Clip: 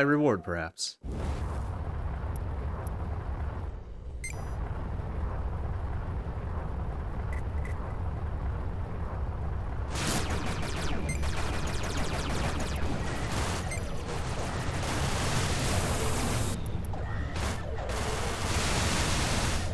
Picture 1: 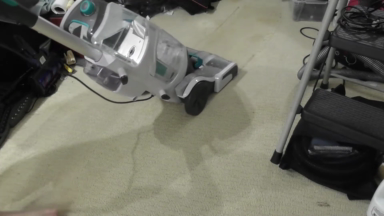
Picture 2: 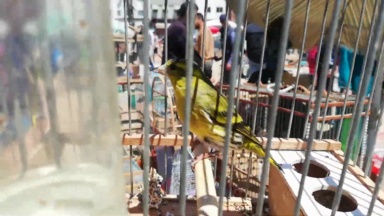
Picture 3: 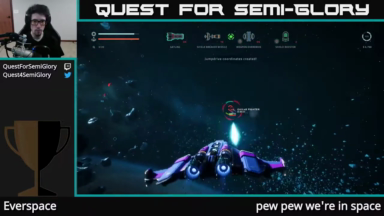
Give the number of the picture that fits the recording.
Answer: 3